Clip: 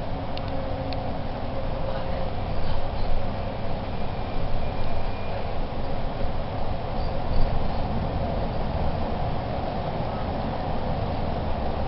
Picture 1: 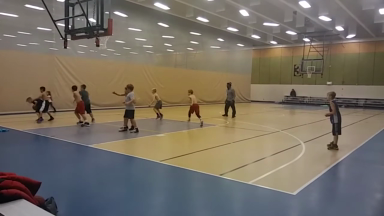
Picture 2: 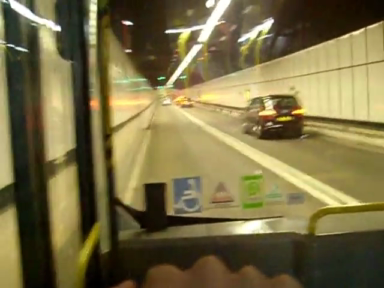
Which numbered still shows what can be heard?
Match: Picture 2